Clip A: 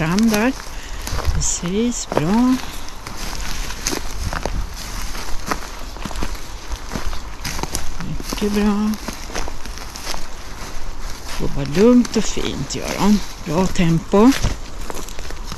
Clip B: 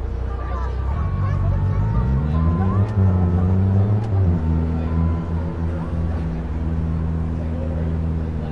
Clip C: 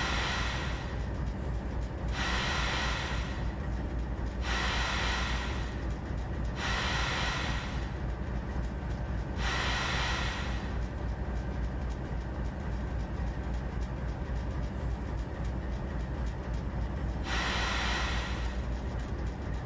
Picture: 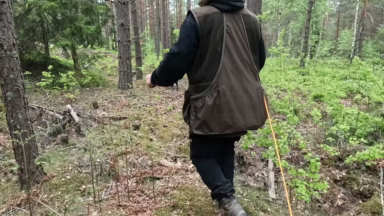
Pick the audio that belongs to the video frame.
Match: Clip A